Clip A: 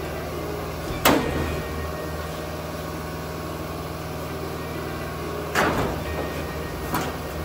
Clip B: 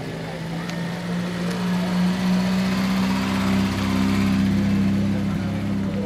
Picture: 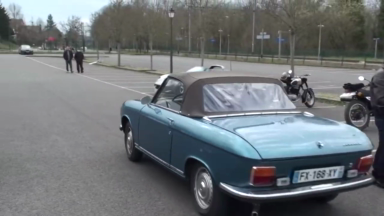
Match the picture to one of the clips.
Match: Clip B